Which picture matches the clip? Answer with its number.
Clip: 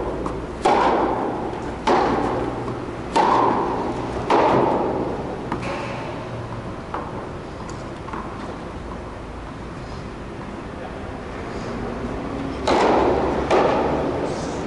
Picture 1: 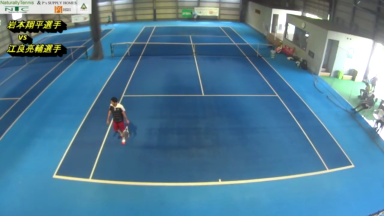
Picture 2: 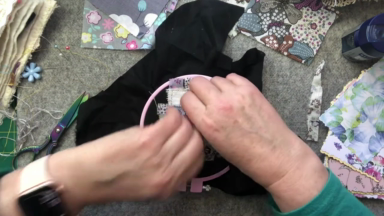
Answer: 1